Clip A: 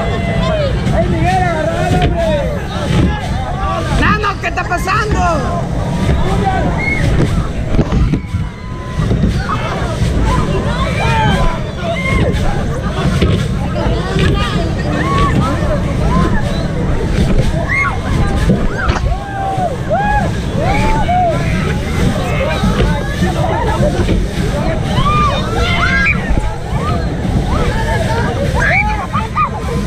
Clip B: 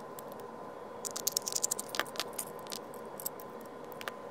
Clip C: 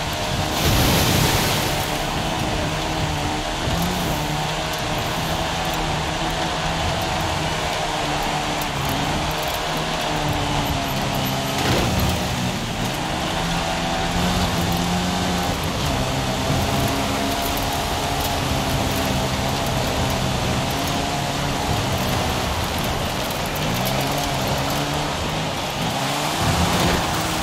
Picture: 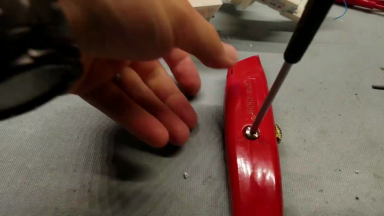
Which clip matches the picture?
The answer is B